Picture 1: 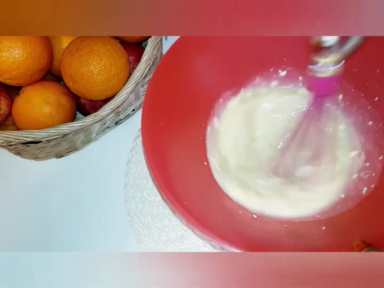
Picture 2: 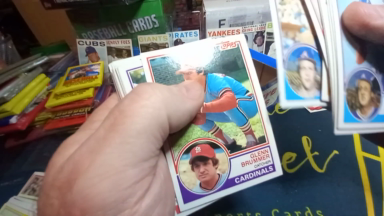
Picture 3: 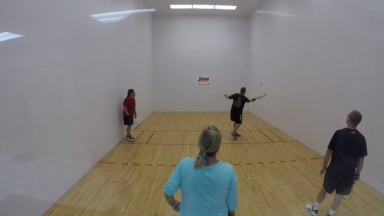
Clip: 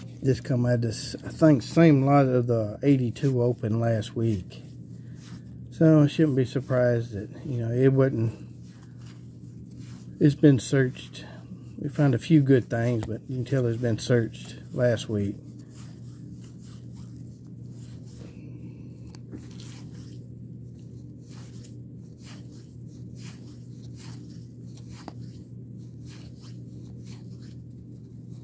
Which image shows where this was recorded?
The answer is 2